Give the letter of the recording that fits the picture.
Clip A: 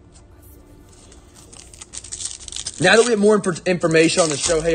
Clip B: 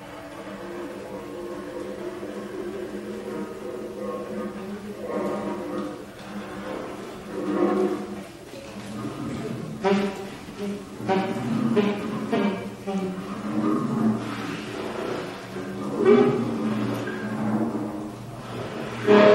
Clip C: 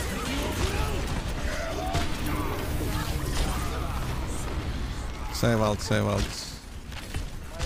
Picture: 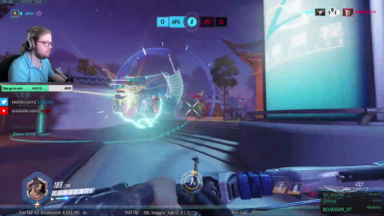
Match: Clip C